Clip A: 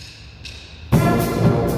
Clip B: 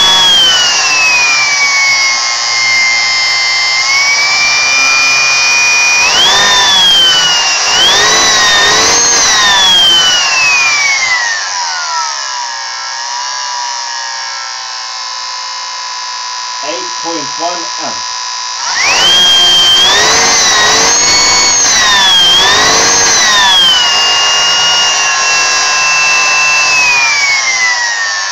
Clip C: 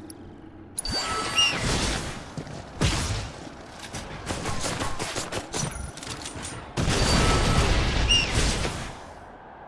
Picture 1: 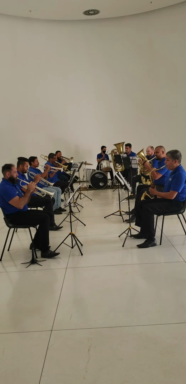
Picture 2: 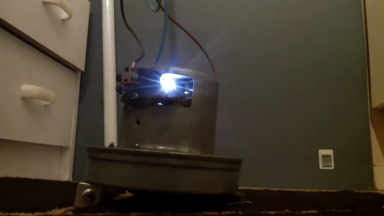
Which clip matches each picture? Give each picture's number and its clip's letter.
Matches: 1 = A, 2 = B